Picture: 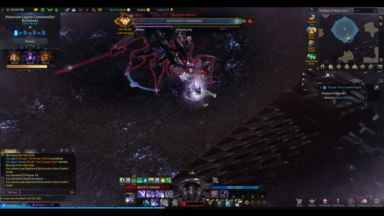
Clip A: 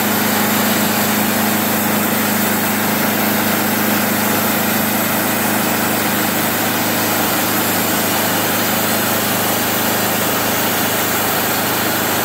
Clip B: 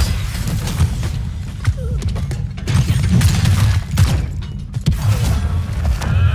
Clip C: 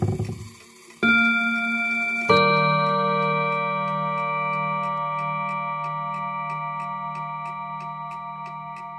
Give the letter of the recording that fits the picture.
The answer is B